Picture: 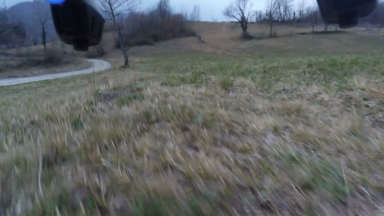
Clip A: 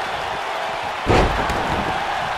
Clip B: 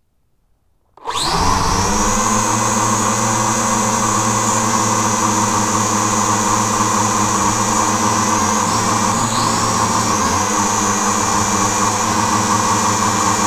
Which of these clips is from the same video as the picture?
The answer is B